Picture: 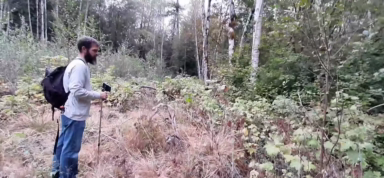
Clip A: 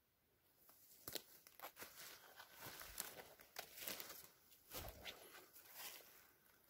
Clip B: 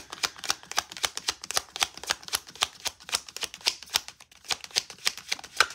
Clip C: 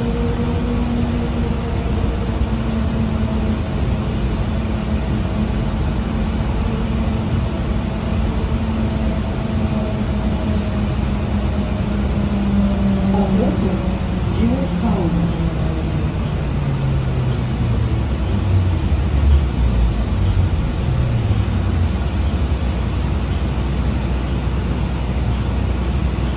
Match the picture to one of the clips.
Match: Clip A